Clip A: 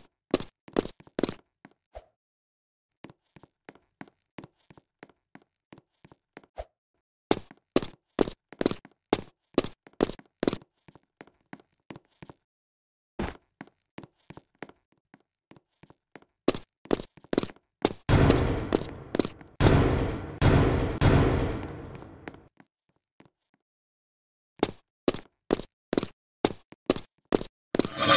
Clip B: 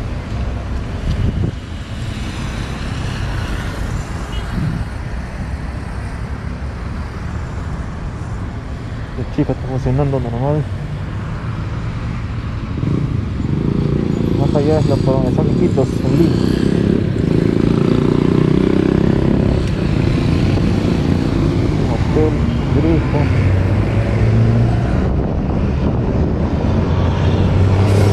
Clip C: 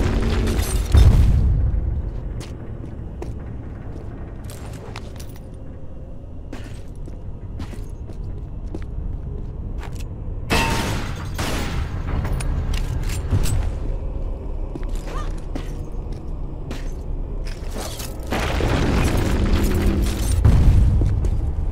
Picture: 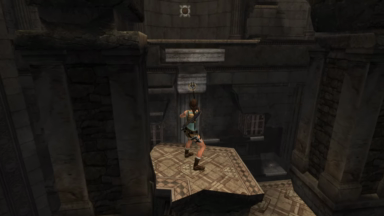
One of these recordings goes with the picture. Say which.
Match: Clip C